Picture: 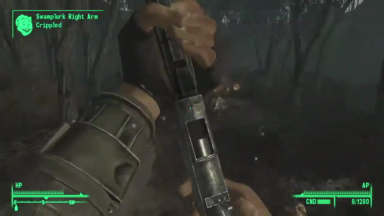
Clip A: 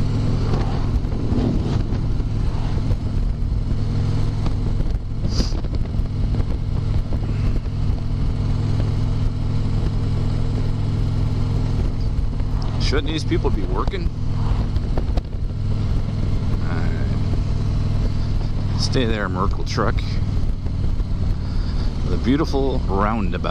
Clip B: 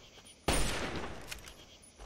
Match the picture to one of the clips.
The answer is B